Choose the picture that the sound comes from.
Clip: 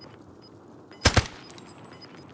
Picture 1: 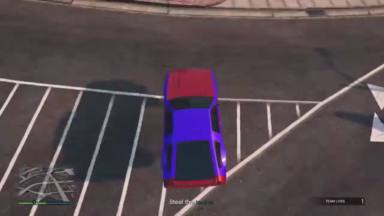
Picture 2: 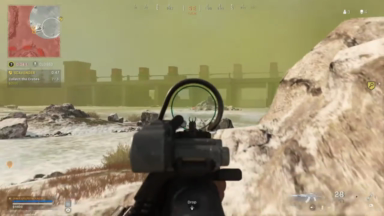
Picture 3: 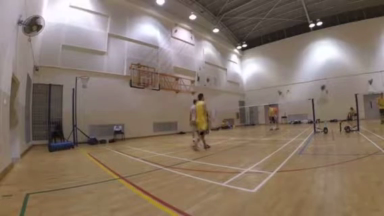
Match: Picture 2